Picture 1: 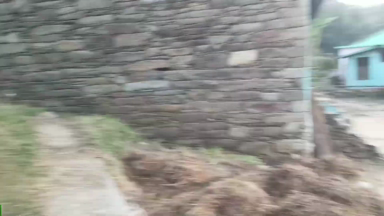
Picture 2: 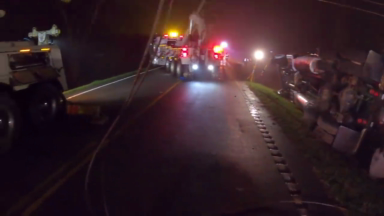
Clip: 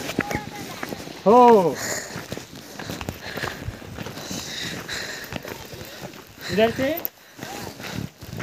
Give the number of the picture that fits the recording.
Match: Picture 1